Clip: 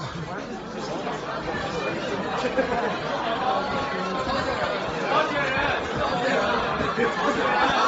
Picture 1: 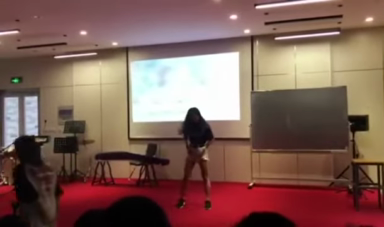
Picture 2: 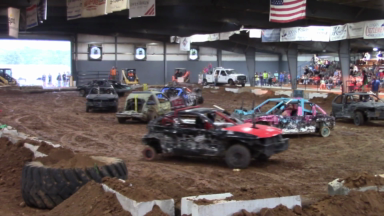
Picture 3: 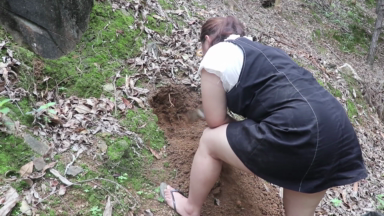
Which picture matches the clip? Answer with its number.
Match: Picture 1